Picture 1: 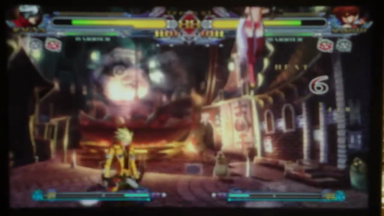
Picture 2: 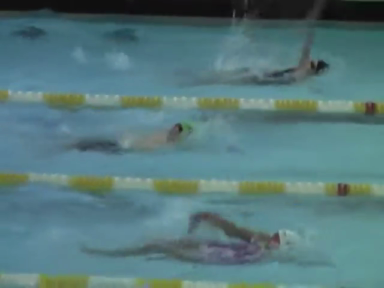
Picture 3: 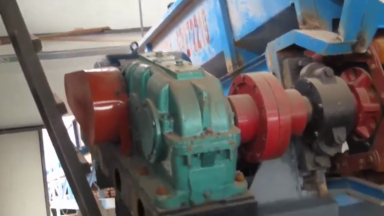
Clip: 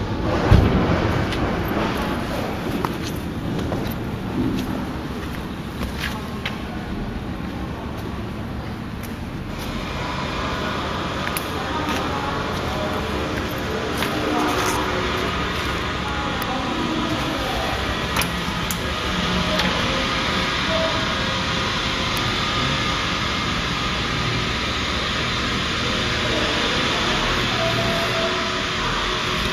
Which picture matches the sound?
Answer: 3